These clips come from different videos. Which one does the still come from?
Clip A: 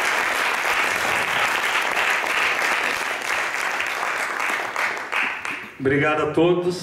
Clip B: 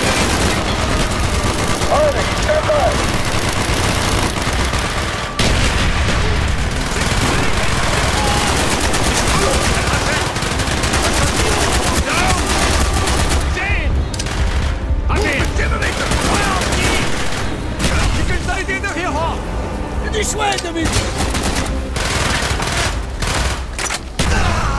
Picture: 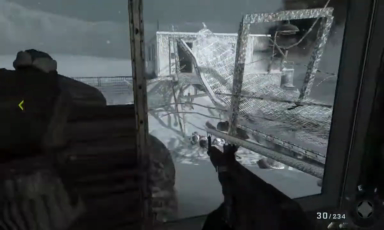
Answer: B